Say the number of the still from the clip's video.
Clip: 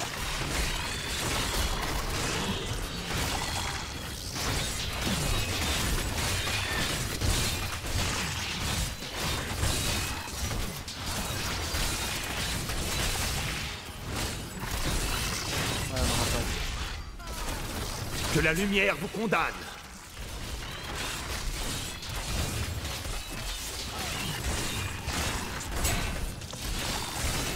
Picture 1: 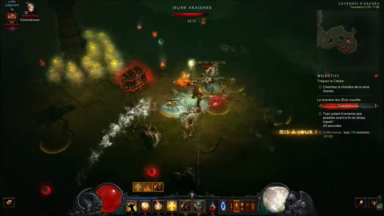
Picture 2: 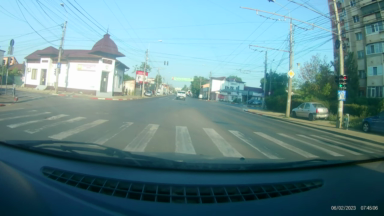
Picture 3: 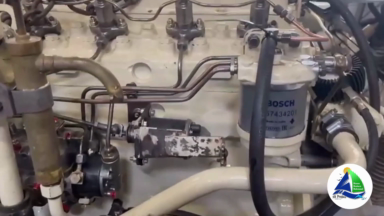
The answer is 1